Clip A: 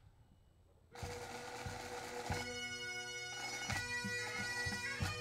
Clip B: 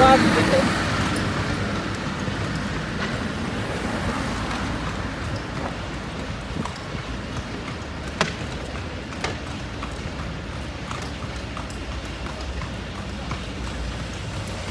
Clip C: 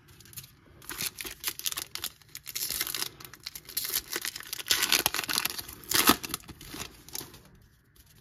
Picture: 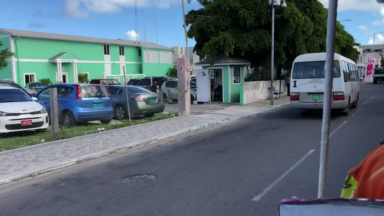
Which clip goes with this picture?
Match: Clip B